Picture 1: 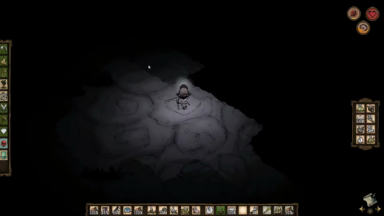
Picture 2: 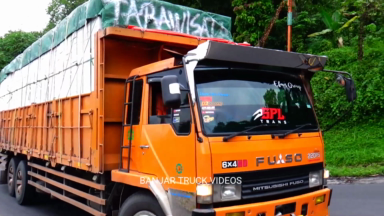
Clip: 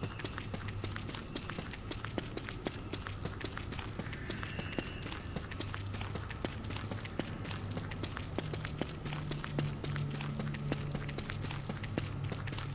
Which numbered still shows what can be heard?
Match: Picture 1